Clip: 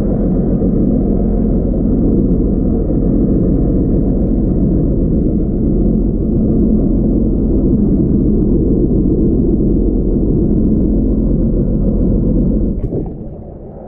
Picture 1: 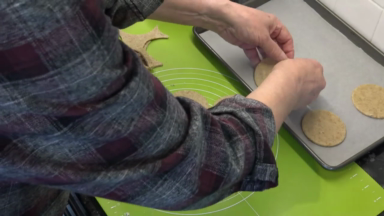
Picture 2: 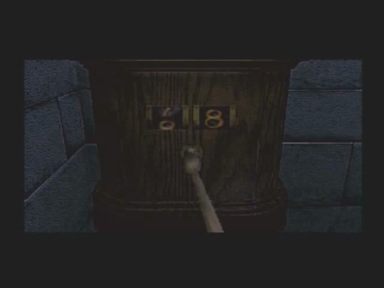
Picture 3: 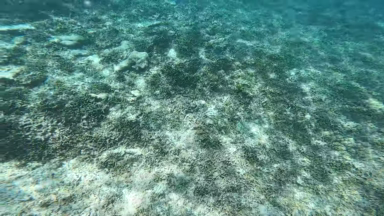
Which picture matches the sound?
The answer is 3